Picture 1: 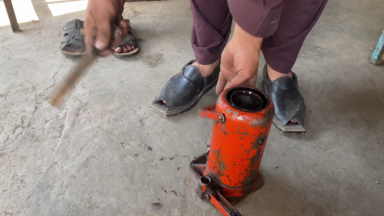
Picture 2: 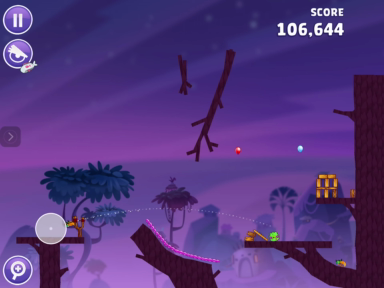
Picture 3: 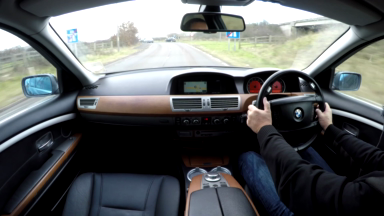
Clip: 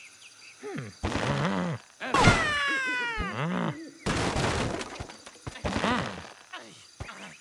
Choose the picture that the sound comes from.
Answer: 2